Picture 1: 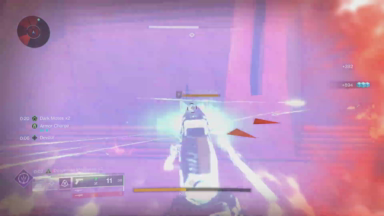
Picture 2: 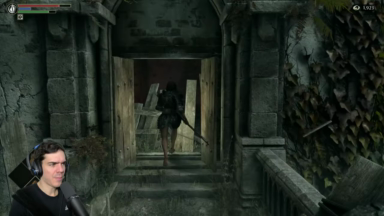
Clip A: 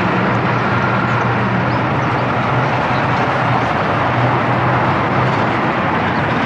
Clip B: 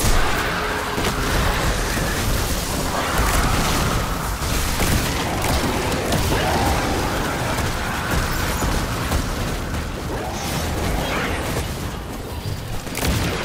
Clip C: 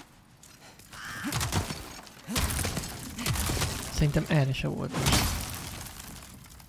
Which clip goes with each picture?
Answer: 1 B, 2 C